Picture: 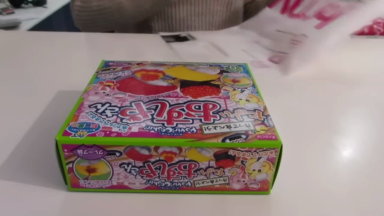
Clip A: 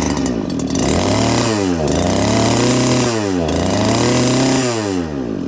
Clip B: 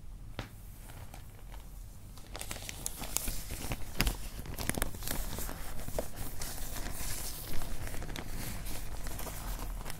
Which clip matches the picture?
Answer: B